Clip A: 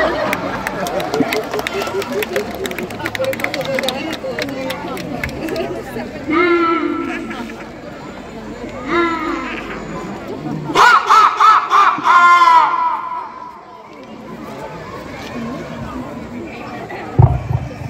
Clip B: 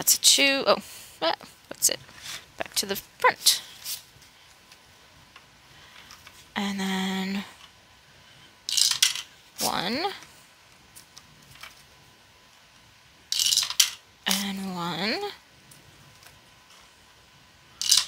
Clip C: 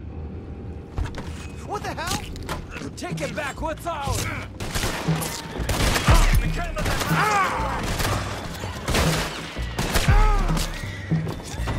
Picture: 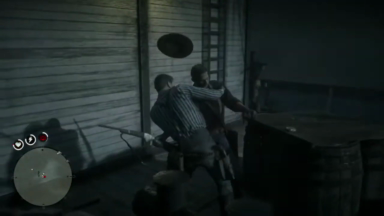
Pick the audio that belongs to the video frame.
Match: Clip C